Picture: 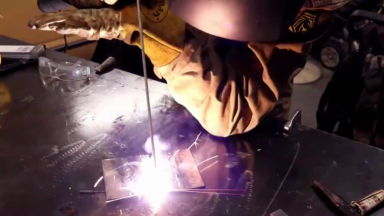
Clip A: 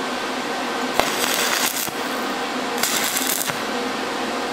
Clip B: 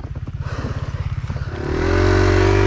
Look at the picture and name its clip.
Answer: A